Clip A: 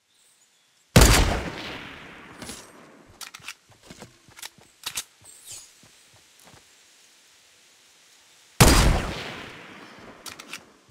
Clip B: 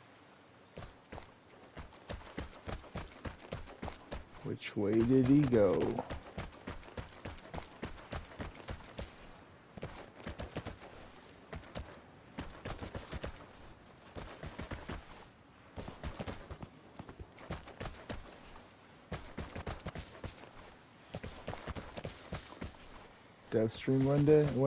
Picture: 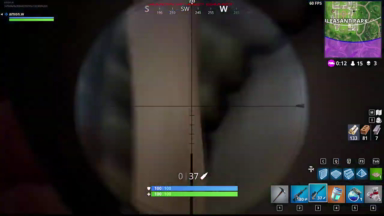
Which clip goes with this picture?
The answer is A